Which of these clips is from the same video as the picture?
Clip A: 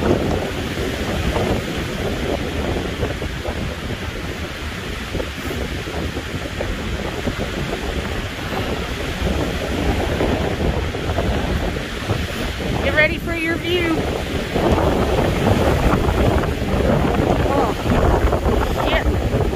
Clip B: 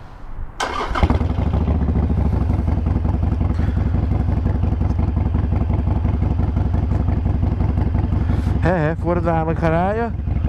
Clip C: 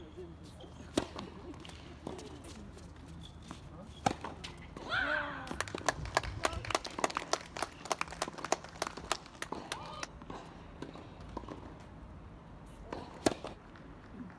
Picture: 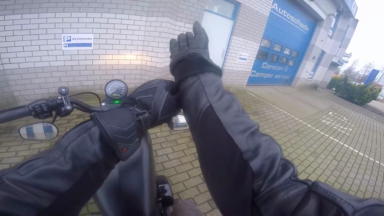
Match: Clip B